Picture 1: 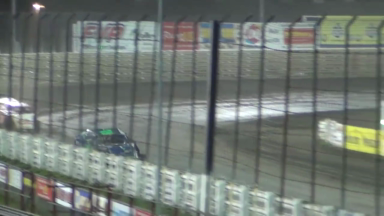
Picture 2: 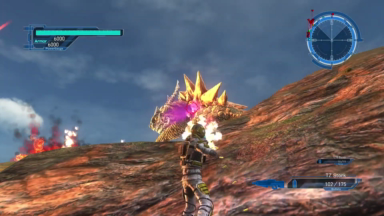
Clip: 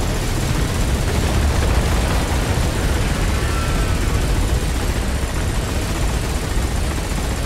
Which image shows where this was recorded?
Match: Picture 2